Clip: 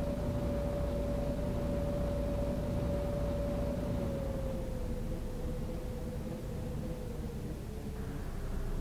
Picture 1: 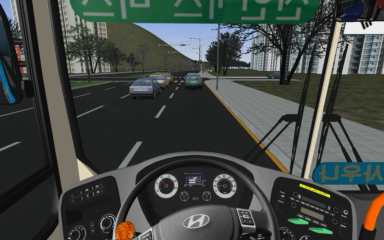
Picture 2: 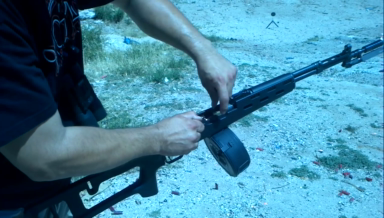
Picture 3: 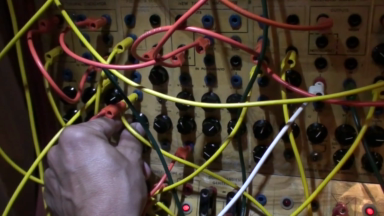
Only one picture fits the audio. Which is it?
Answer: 1